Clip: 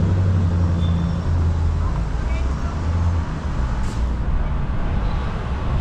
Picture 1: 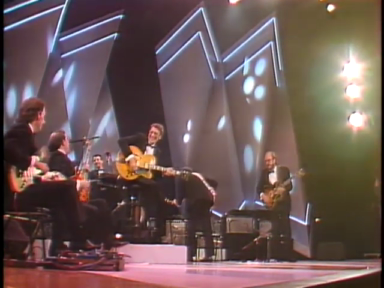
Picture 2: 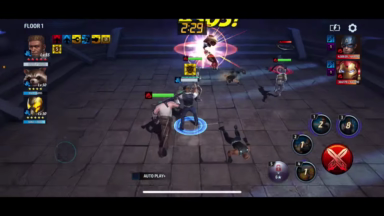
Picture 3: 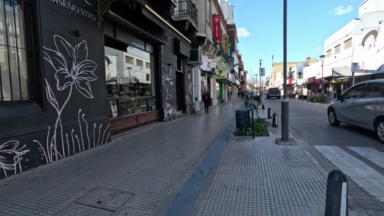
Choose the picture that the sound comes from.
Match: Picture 3